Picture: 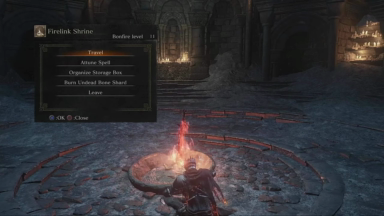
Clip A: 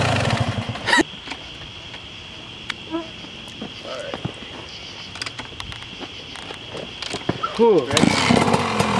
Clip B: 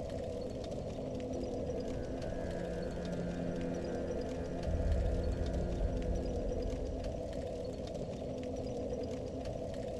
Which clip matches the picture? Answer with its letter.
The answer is B